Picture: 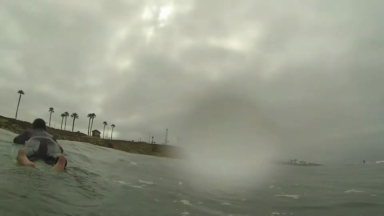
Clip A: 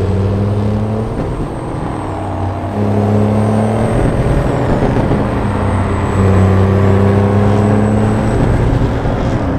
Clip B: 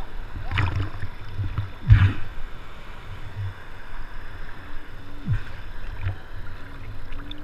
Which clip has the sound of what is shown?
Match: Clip B